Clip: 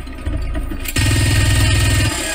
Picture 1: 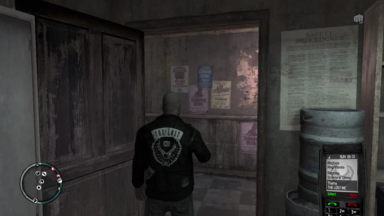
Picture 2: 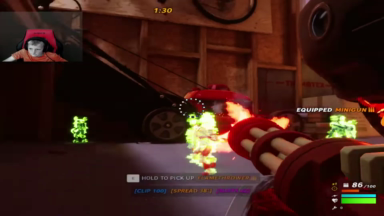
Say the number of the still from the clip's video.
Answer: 2